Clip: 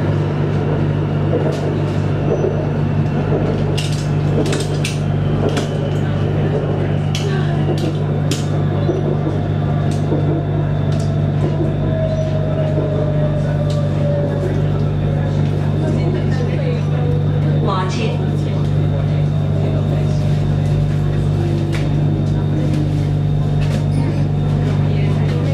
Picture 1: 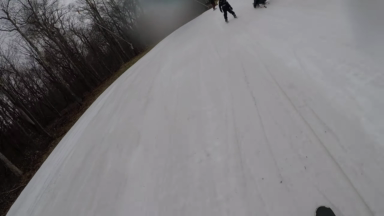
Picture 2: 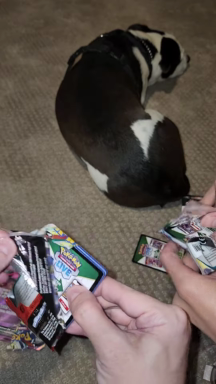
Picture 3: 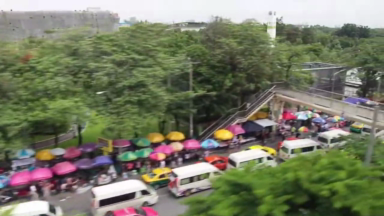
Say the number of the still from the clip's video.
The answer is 3